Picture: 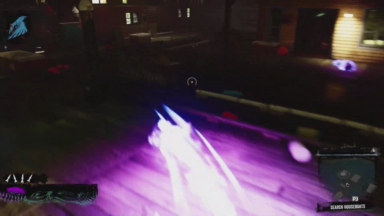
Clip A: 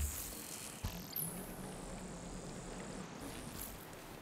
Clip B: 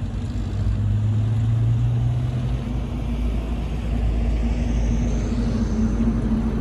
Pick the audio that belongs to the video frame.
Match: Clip A